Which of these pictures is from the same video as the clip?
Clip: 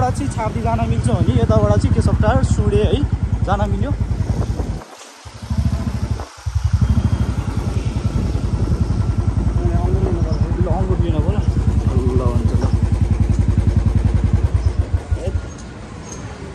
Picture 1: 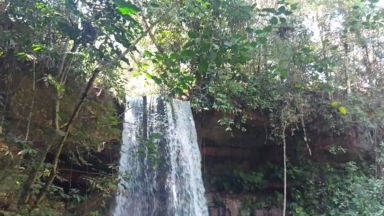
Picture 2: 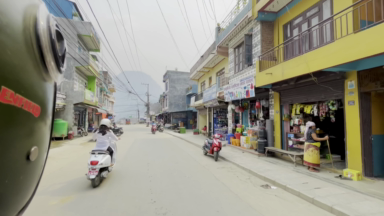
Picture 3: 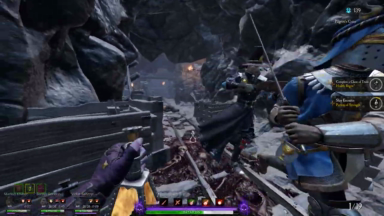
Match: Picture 2